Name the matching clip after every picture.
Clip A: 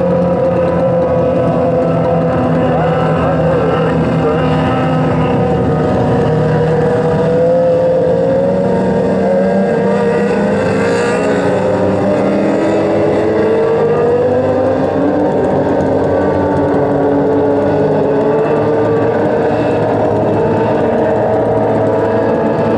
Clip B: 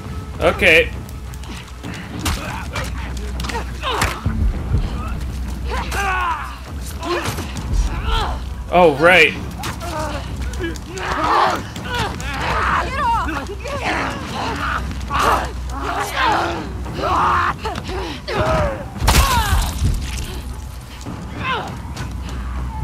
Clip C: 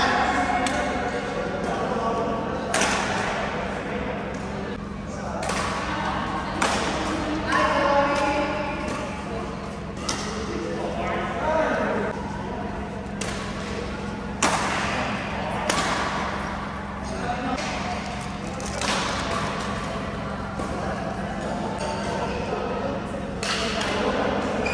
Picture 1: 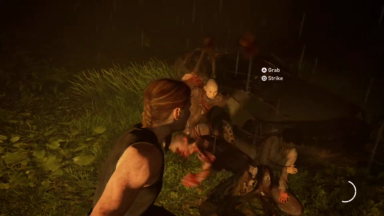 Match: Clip B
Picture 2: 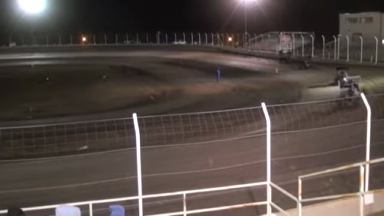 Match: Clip A